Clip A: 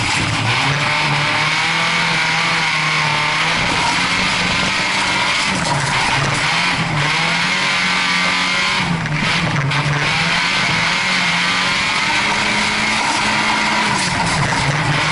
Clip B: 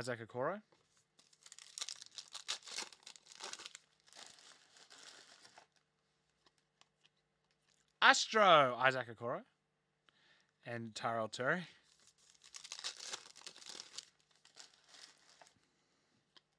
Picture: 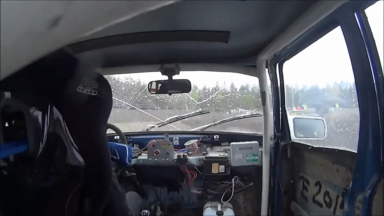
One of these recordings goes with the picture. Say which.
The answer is A